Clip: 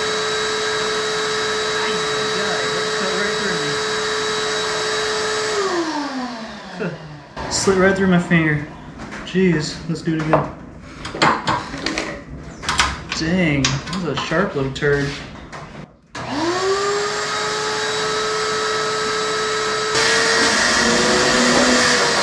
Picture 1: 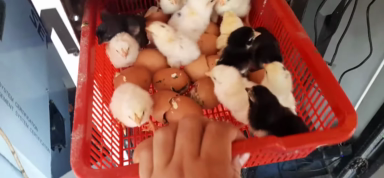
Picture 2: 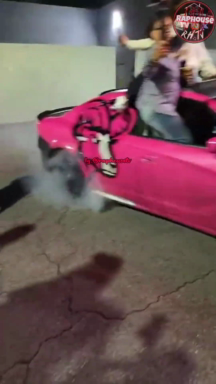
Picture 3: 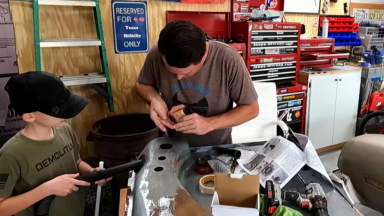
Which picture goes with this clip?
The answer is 3